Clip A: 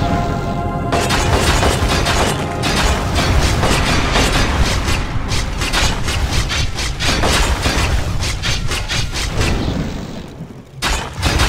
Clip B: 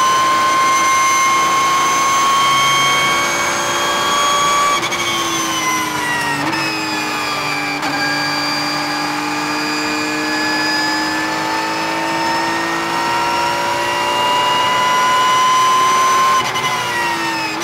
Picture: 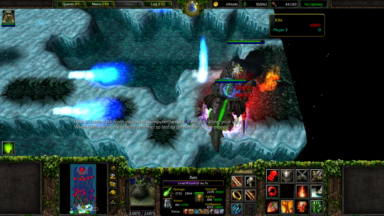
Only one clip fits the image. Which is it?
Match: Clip A